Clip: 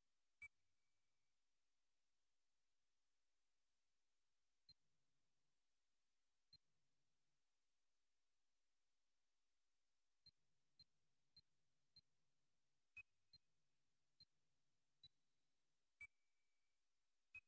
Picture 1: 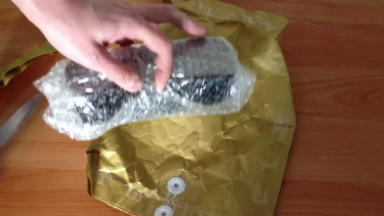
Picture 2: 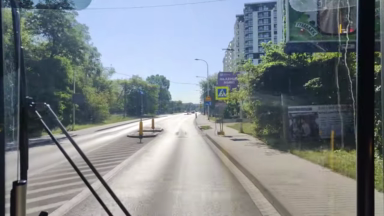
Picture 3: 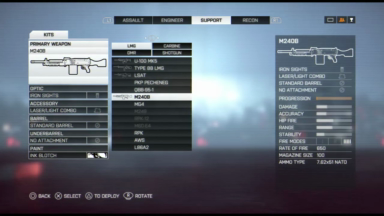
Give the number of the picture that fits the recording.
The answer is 3